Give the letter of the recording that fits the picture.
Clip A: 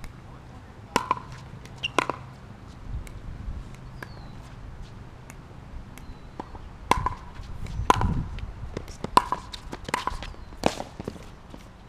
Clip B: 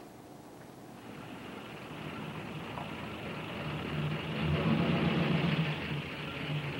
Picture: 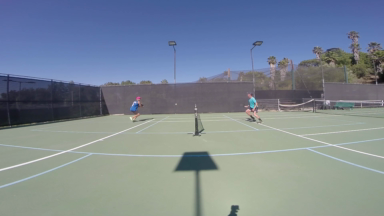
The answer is A